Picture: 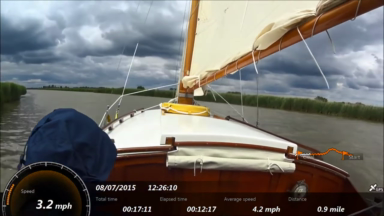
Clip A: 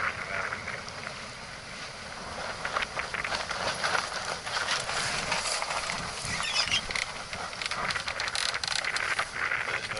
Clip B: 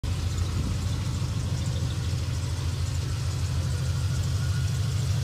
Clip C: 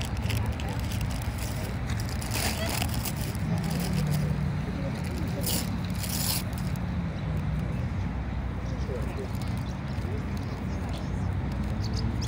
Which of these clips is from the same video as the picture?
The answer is A